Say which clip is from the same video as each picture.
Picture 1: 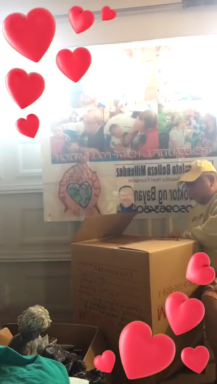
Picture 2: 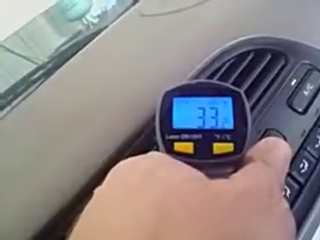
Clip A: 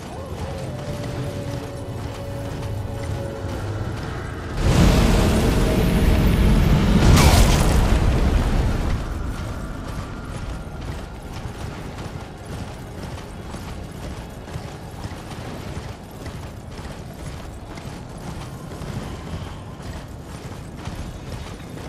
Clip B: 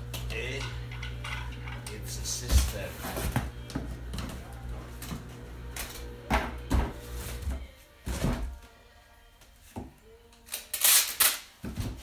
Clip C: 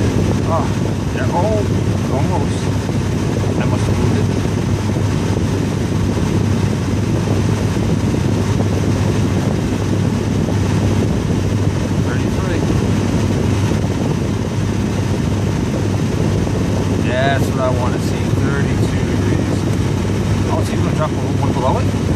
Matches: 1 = B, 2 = C